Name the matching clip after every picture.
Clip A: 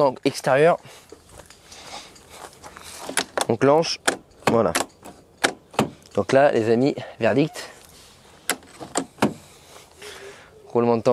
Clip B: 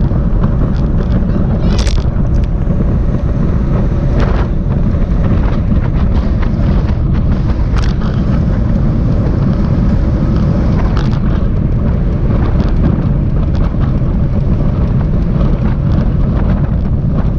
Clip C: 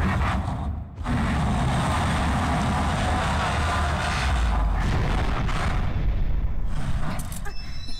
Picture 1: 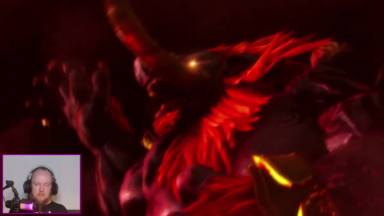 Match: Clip C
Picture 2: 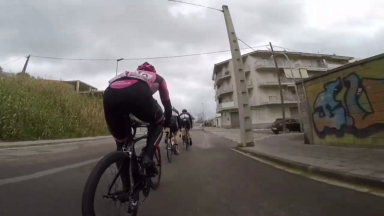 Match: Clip B